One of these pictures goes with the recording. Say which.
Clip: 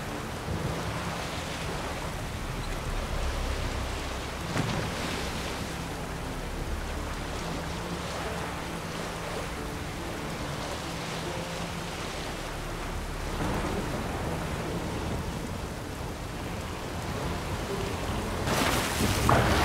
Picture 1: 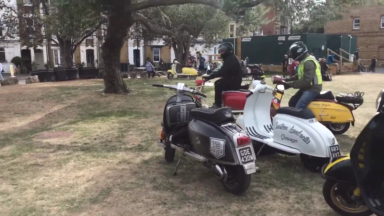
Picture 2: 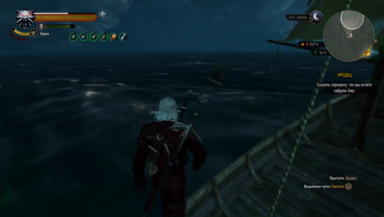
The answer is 2